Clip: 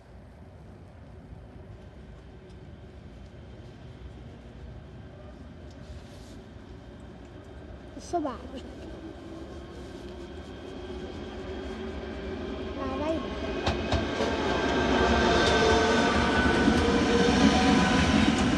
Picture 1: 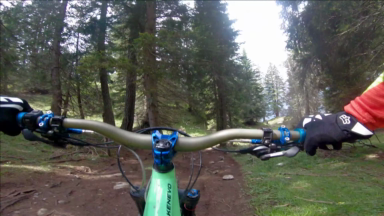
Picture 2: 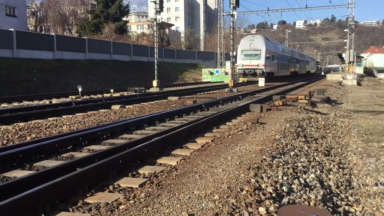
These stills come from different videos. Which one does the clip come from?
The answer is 2